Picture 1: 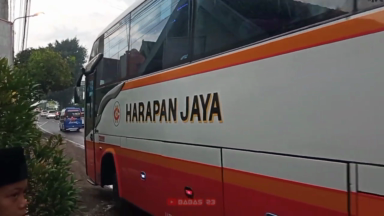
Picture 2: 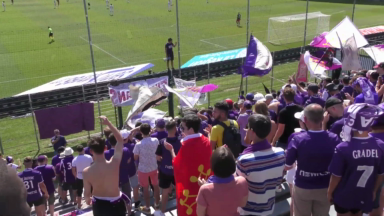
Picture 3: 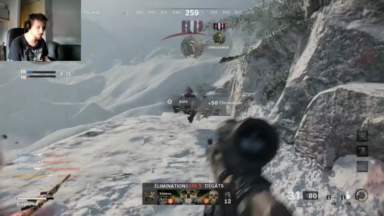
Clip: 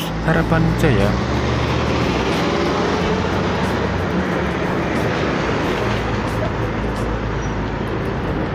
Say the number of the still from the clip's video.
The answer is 1